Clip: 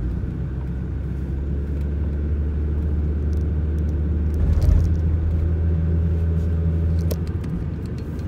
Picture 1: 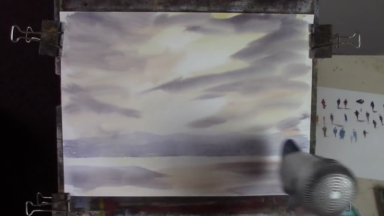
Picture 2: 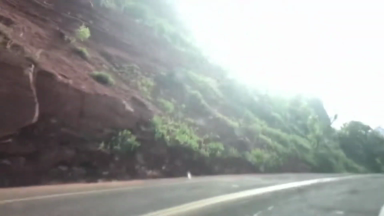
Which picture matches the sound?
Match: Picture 2